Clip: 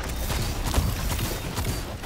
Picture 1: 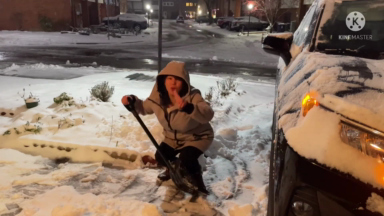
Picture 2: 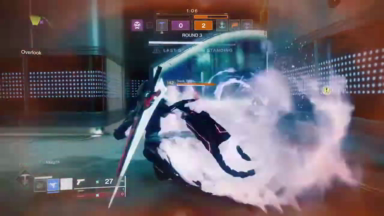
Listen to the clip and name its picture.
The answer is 2